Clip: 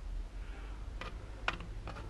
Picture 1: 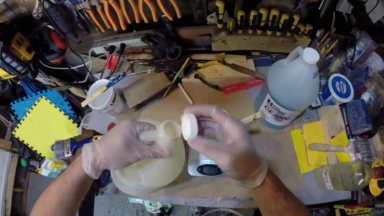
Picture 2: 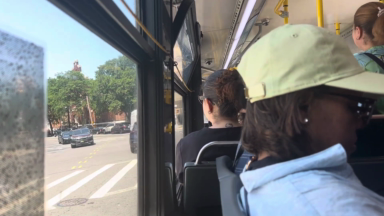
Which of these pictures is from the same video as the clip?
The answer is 1